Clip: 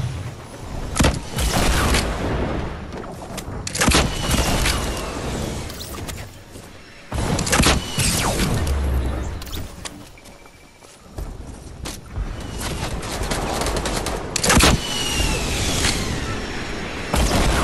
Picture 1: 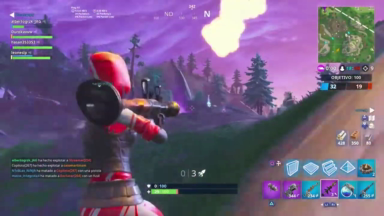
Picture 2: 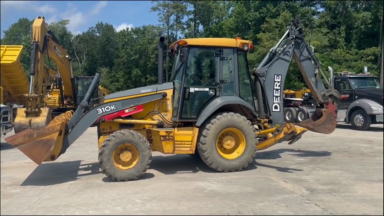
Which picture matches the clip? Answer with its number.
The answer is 1